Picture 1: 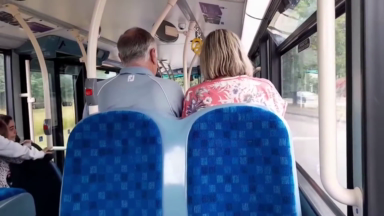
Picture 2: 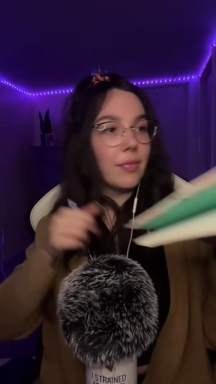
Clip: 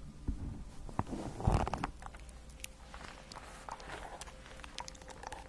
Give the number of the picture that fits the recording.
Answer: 2